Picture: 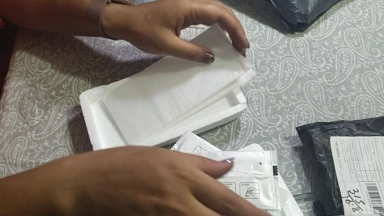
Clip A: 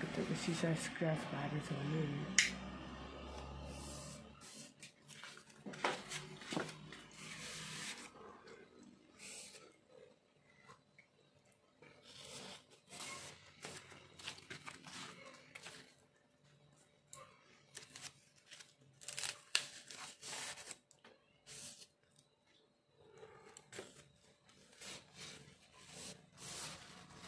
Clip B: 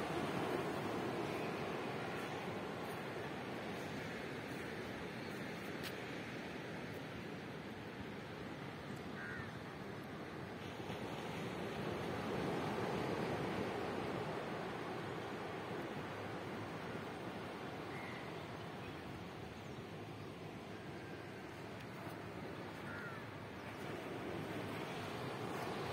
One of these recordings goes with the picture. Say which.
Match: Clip A